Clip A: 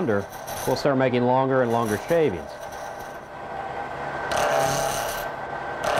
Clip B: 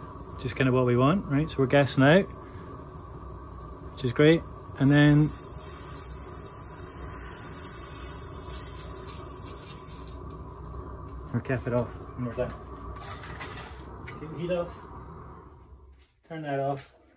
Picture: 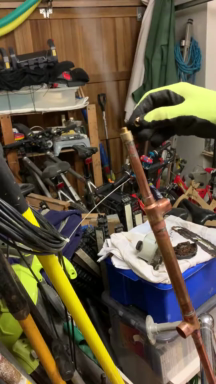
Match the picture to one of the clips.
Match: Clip B